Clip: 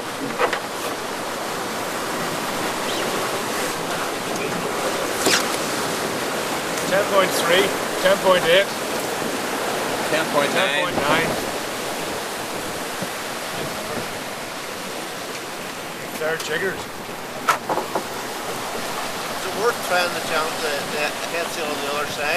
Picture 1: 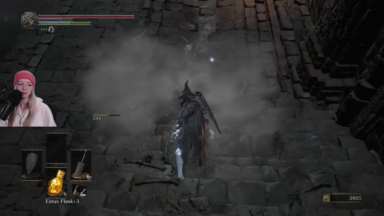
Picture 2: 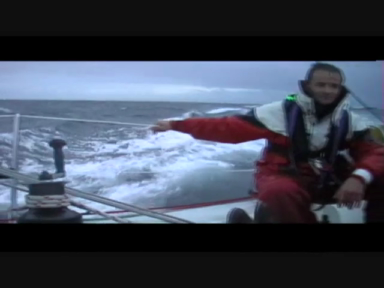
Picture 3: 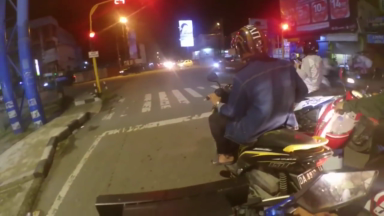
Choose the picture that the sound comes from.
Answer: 2